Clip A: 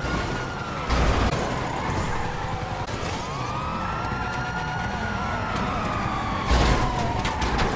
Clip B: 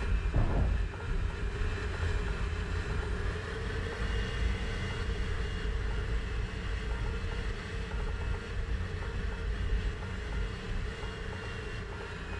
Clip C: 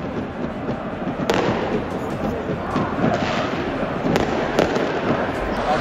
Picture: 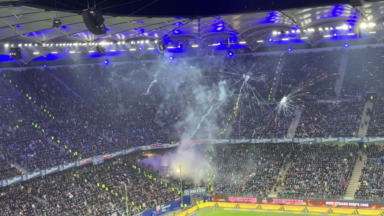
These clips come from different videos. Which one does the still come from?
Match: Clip C